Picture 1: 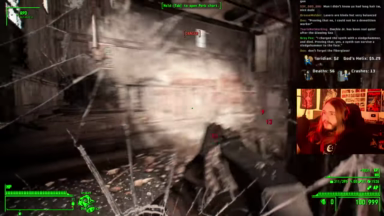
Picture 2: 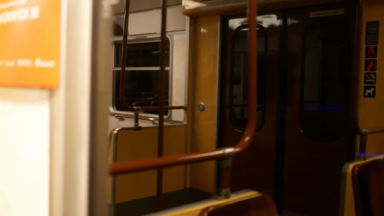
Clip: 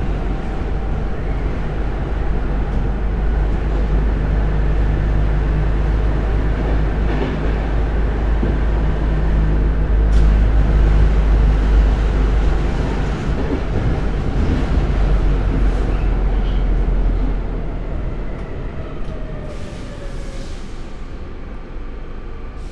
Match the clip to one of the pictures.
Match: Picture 2